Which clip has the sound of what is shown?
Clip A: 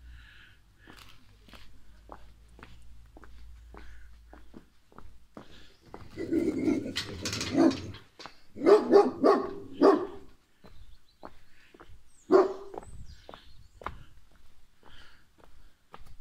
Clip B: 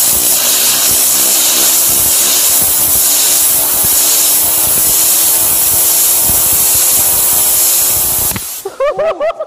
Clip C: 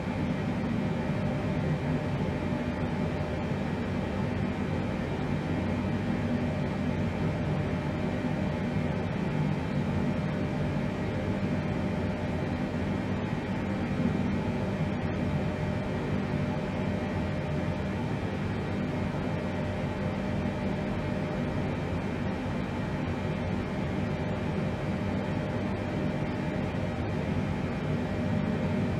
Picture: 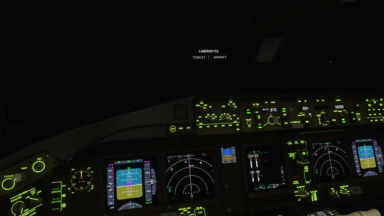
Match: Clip C